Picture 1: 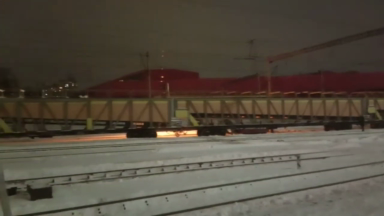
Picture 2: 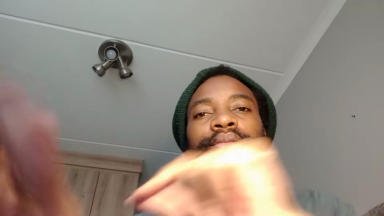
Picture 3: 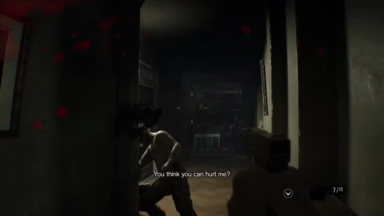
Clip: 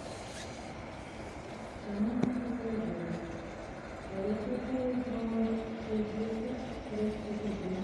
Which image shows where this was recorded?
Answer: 1